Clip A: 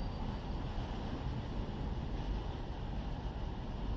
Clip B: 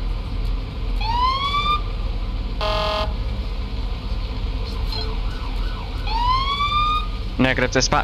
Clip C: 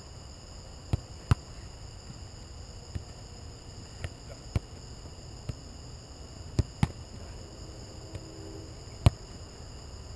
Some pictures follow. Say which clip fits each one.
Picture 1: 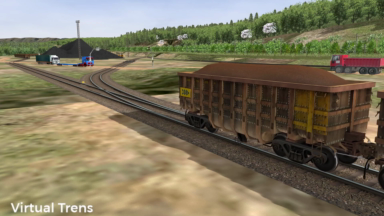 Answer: A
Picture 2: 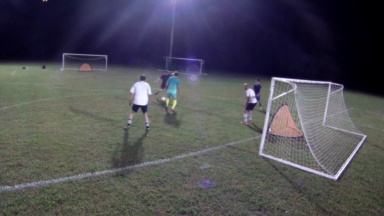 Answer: C